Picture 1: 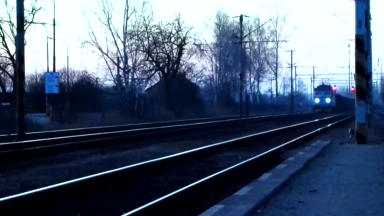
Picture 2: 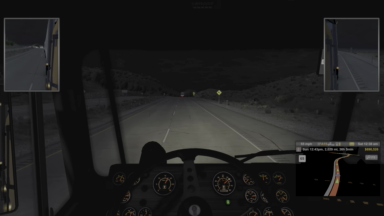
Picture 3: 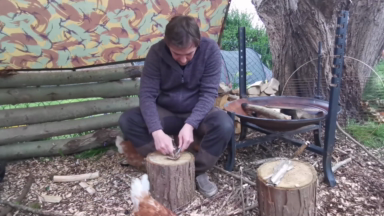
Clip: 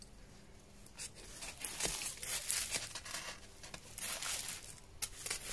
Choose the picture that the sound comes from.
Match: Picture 3